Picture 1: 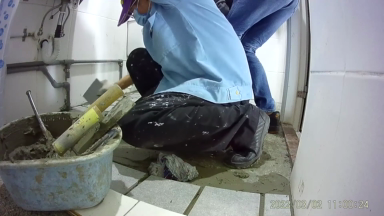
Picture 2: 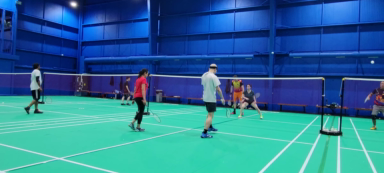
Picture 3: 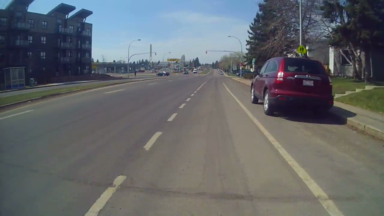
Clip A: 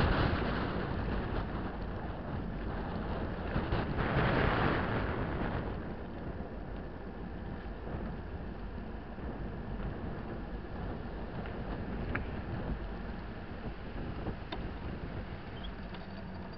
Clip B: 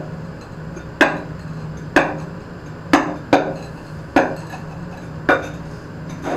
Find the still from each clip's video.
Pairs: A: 3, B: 1